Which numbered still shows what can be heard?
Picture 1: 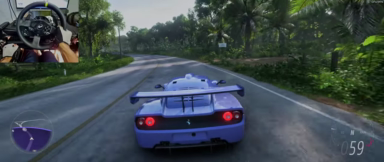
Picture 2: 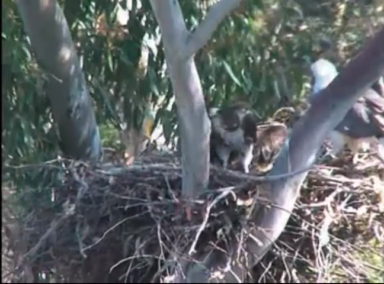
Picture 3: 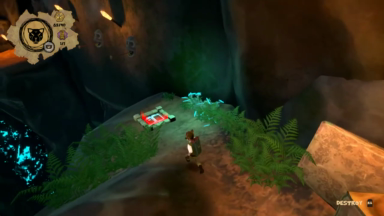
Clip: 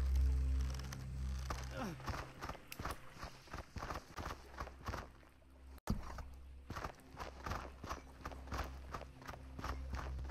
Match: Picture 3